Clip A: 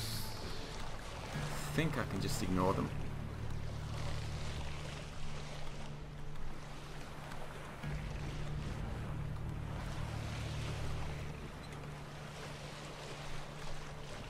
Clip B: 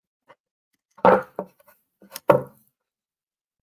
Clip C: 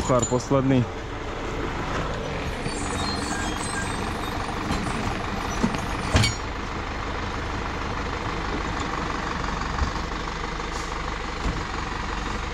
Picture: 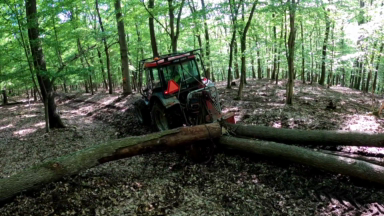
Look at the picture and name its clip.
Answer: C